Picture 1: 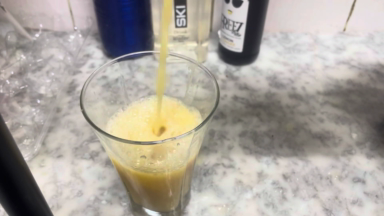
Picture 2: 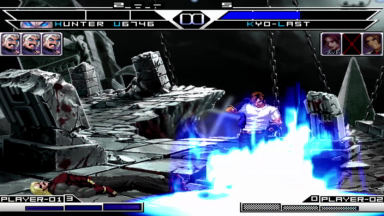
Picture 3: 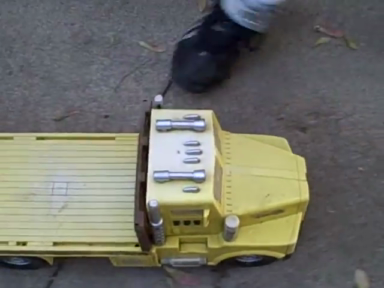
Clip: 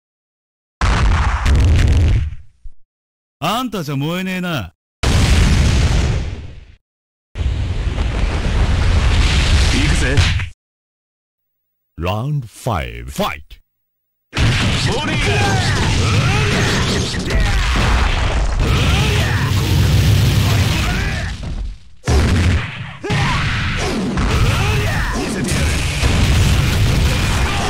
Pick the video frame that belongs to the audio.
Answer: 2